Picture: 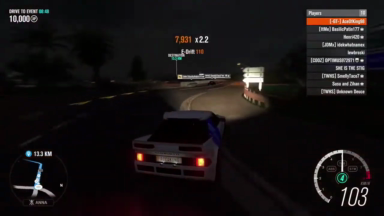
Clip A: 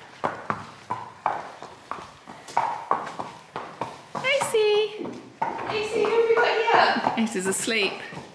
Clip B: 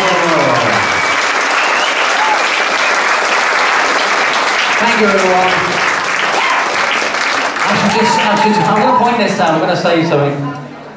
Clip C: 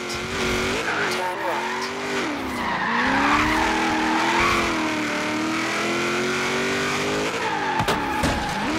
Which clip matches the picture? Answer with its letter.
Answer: C